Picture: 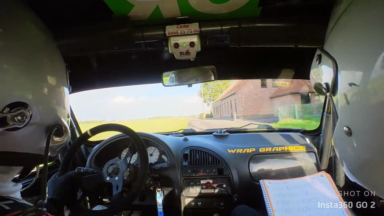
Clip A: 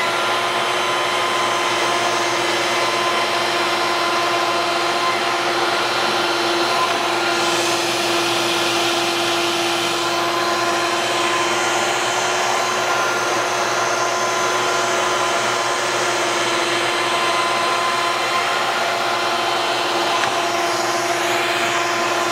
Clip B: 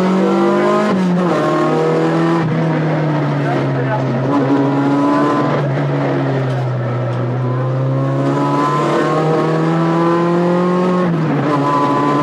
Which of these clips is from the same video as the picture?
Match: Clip B